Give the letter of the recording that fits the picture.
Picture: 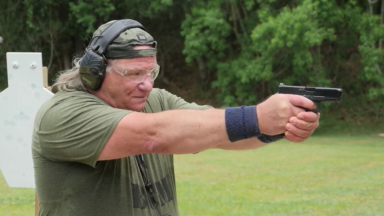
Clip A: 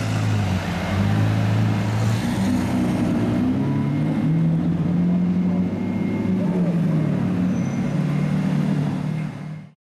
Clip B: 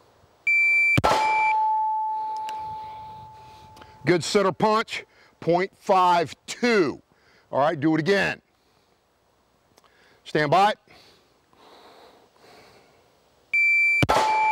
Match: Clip B